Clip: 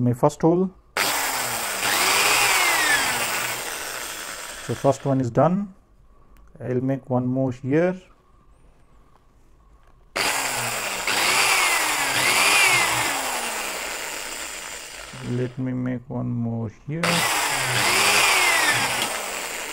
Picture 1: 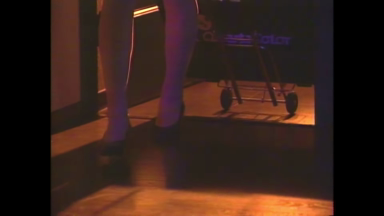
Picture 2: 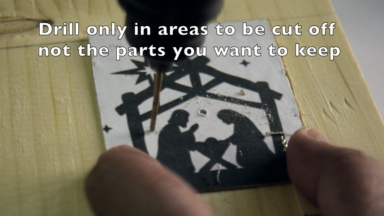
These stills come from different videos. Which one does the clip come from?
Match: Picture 2